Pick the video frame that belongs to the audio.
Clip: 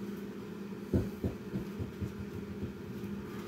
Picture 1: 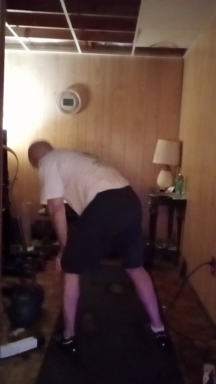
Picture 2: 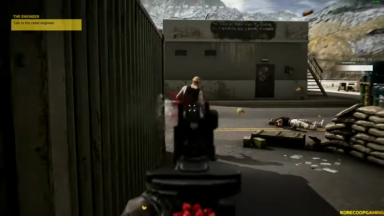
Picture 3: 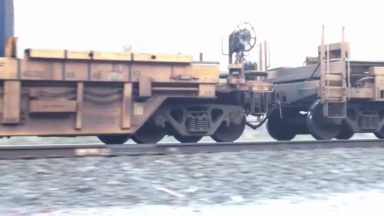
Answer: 1